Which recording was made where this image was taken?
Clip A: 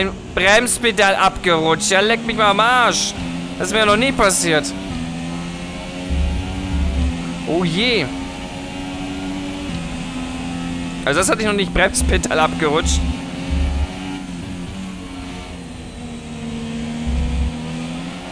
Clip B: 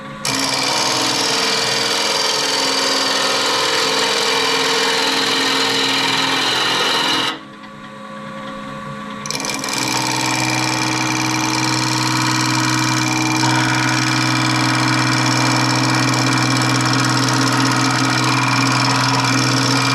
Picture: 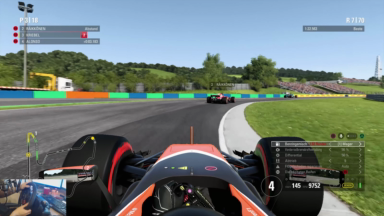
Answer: A